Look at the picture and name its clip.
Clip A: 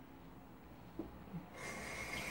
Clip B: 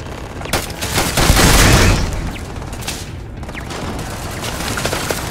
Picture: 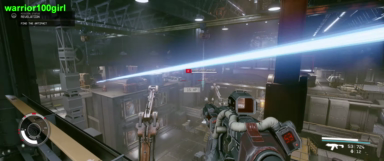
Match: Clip B